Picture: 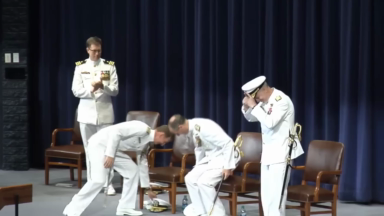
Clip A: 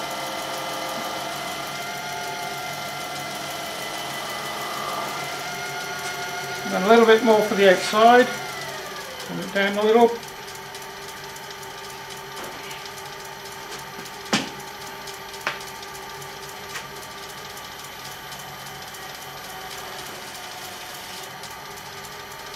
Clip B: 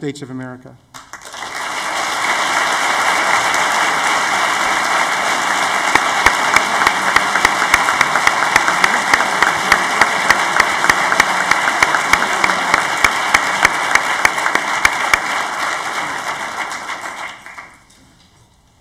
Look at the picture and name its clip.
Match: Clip B